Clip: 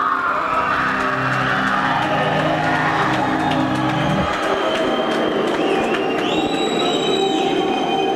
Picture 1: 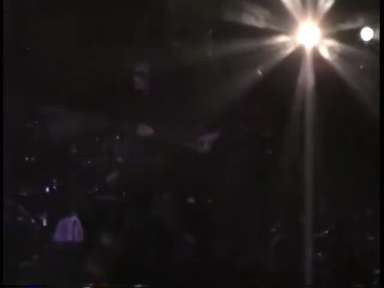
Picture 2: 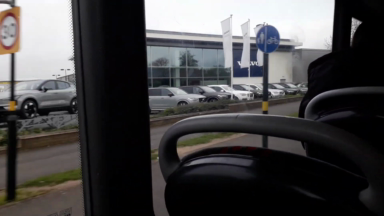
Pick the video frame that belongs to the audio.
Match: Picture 1